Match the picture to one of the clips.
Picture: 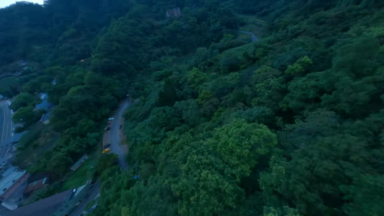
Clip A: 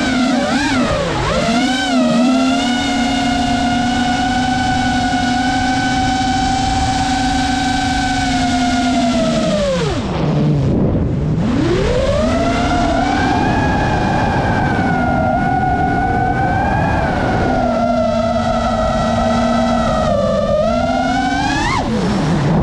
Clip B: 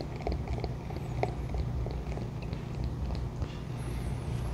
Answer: A